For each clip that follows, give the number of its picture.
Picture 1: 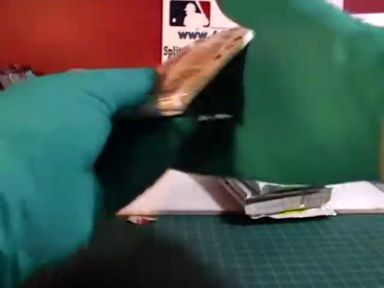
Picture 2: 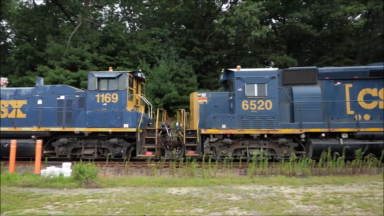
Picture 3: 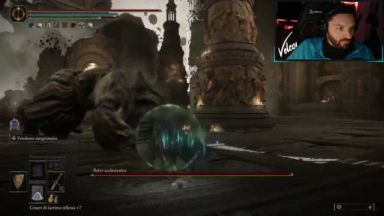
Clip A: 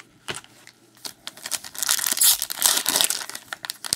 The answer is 1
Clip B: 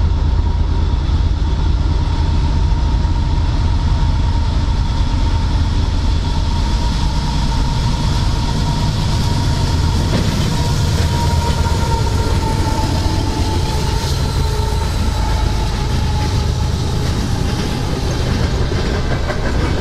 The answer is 2